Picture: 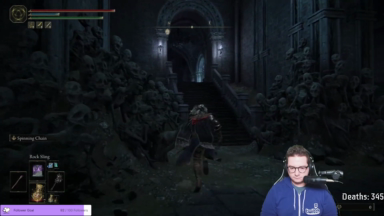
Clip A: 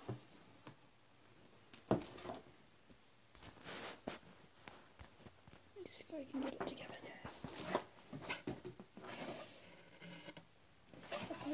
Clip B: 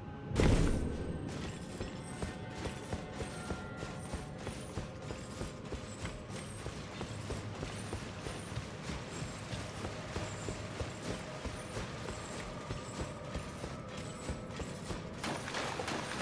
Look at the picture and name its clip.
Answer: B